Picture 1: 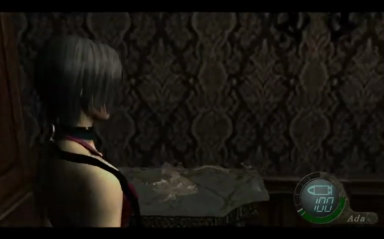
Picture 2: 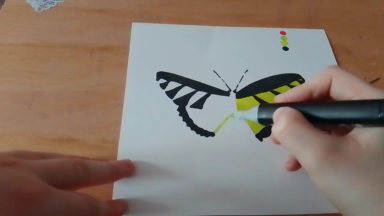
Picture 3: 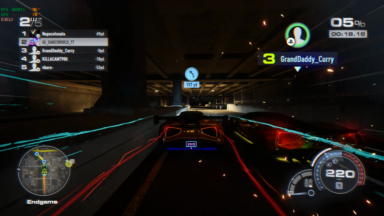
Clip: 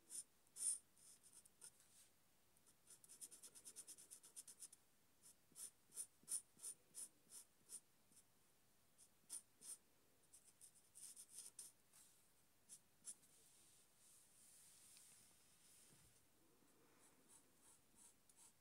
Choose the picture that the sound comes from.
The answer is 2